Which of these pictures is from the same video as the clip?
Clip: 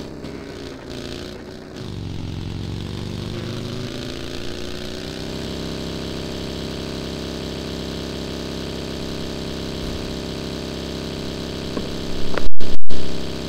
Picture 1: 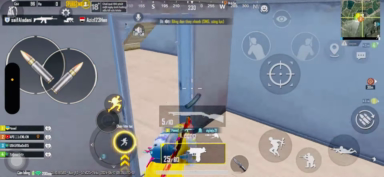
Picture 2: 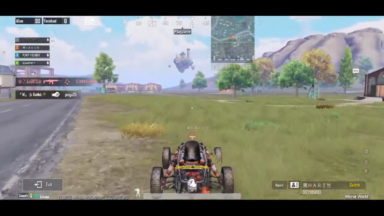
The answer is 2